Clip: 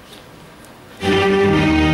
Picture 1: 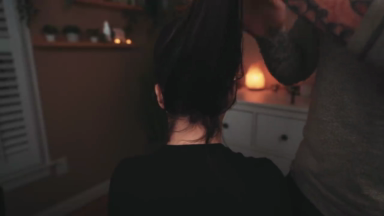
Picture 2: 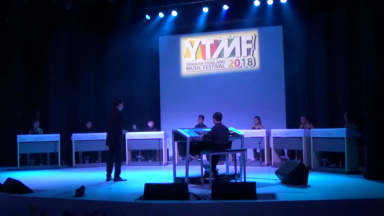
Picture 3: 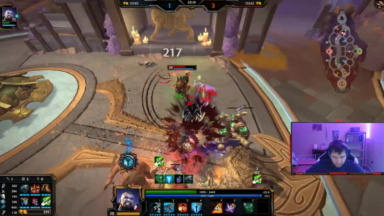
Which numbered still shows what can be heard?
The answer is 2